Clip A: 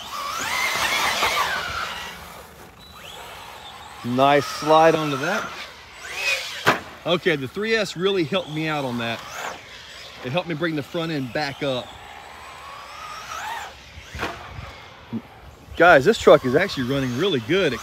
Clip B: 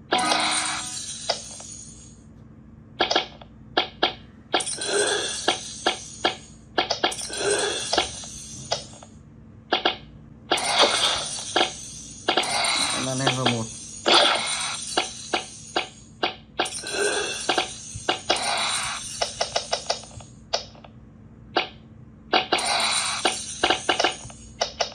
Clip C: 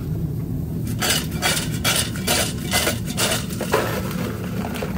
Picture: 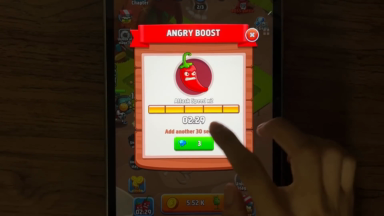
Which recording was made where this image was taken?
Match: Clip B